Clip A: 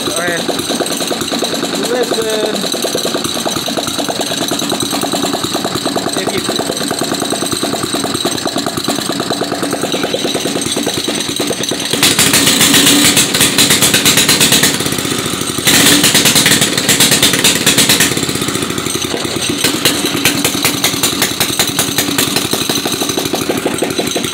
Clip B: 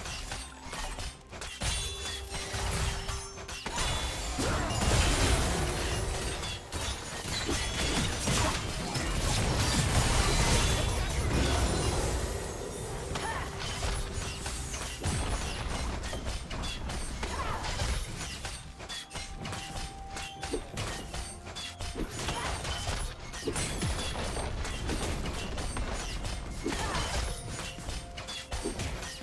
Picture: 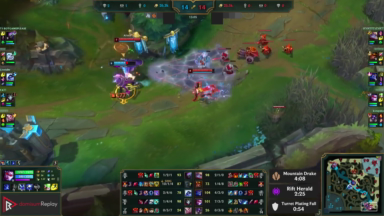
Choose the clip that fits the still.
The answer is B